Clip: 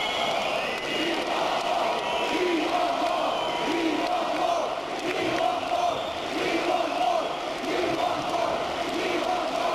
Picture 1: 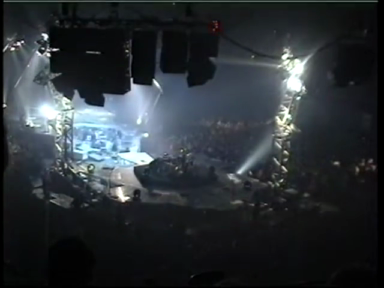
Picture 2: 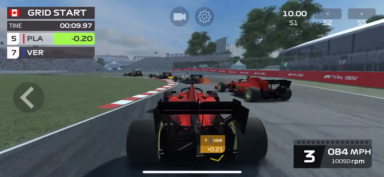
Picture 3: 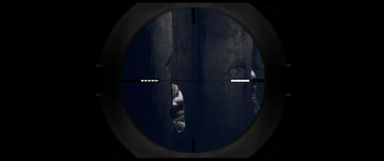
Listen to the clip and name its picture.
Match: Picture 1